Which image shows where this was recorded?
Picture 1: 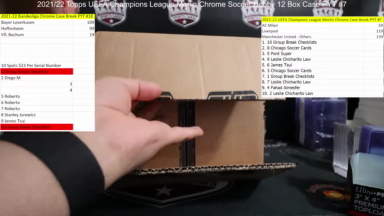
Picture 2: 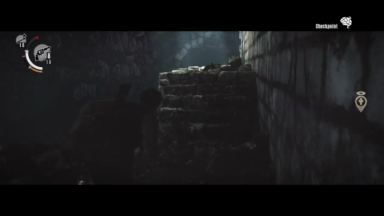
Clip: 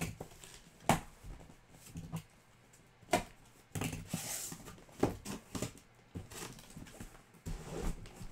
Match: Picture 1